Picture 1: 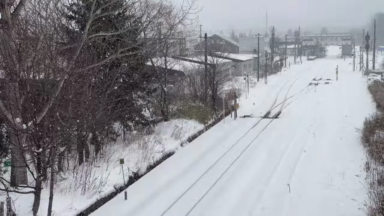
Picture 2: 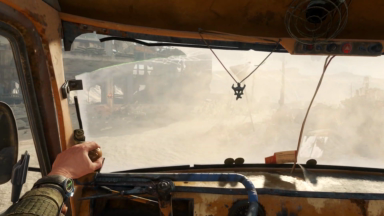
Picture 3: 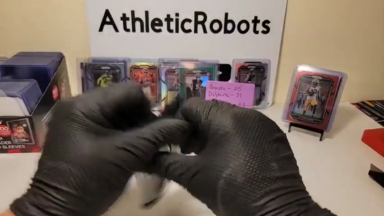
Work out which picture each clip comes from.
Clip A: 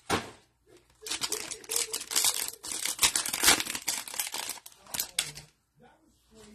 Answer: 3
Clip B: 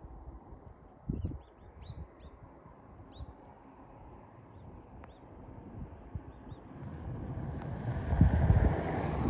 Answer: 1